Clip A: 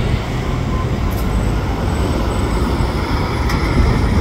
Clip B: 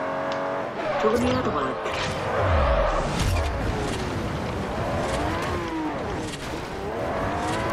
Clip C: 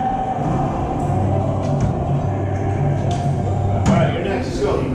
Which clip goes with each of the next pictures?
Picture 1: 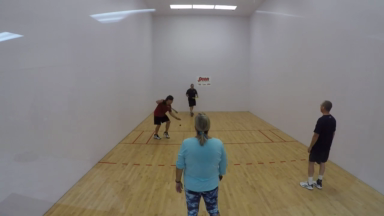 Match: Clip C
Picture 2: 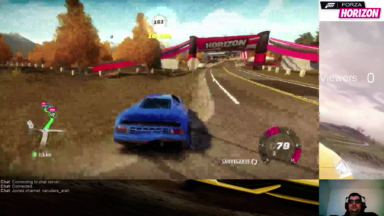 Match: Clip B